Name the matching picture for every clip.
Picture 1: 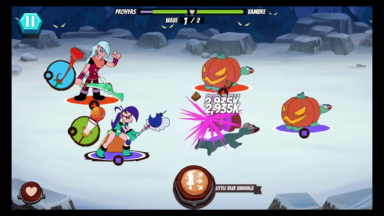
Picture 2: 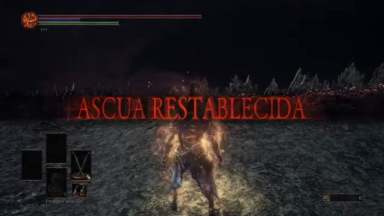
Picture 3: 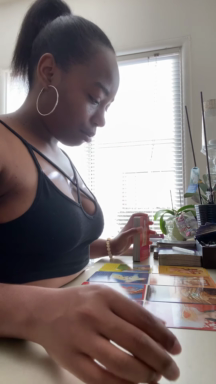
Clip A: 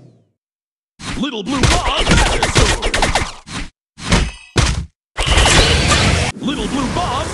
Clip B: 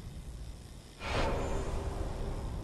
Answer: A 1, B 2